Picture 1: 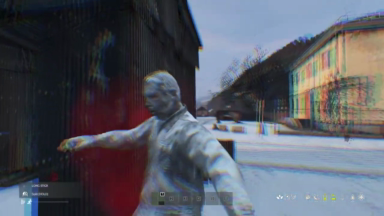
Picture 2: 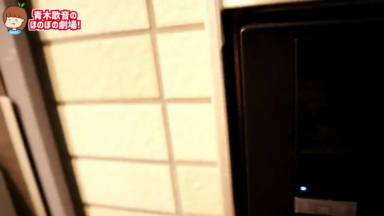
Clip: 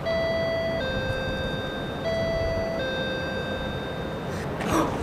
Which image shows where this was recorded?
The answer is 2